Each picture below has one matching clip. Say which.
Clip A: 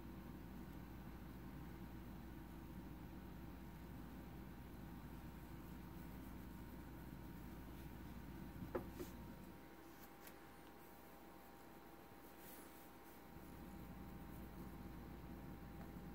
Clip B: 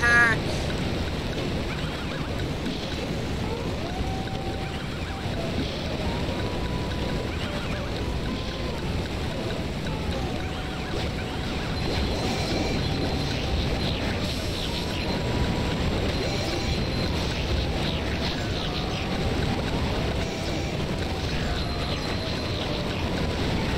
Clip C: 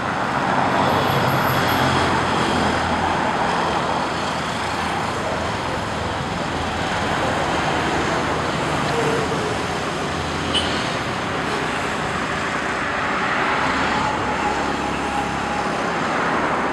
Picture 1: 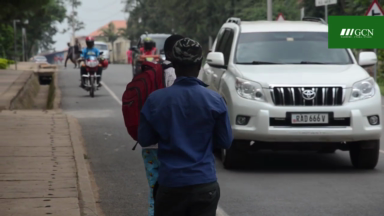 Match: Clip C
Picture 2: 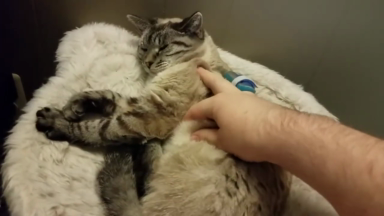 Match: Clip A